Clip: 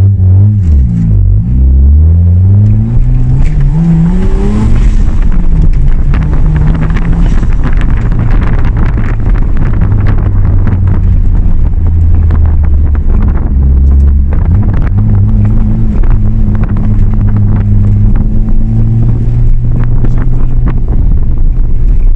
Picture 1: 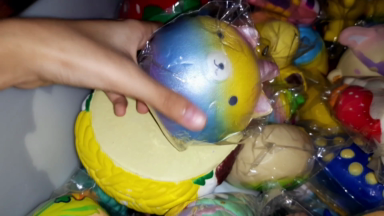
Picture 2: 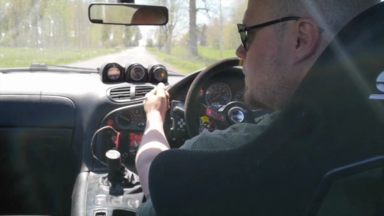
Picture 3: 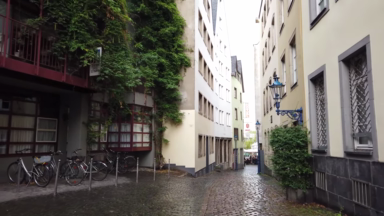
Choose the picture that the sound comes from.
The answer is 2